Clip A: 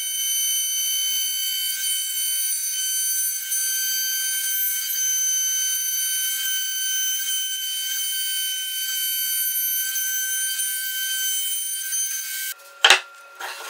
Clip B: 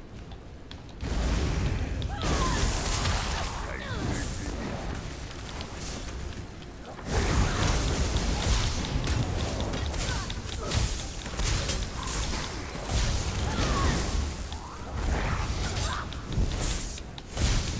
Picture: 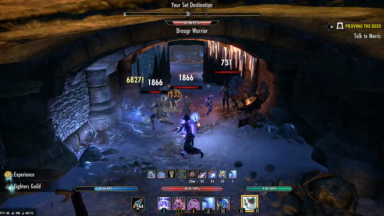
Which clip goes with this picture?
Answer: B